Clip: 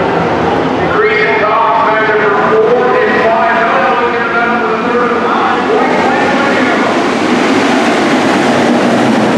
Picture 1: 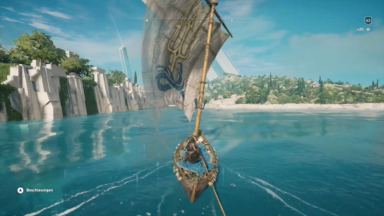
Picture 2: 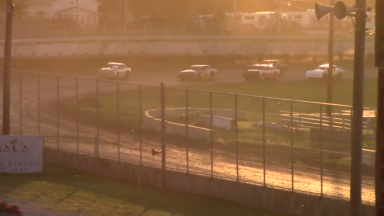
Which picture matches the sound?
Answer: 2